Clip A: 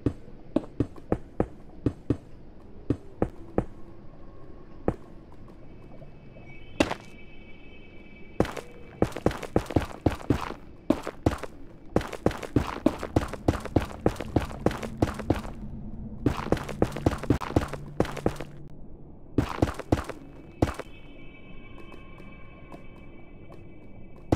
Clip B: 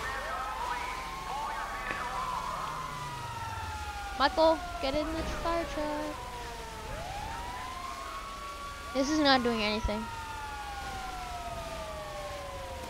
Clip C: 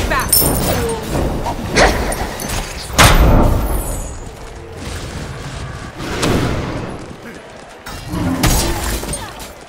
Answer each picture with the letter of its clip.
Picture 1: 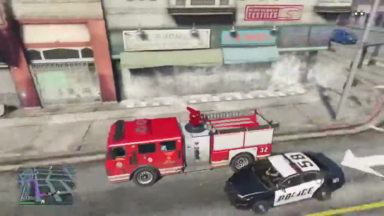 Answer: B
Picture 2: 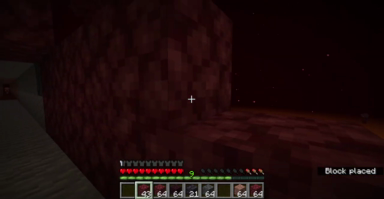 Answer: A